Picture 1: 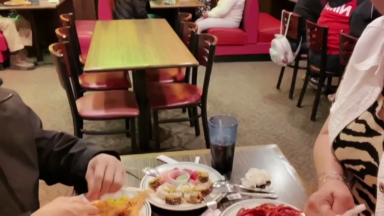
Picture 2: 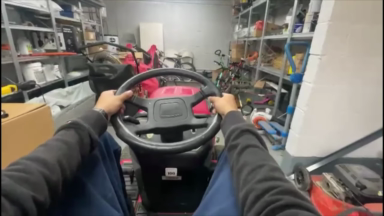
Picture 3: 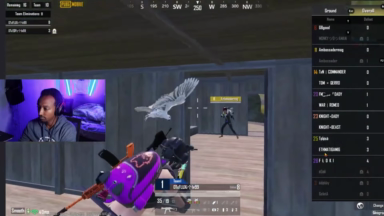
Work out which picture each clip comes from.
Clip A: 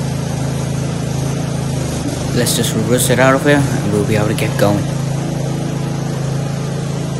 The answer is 2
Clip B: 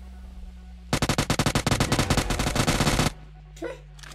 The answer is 3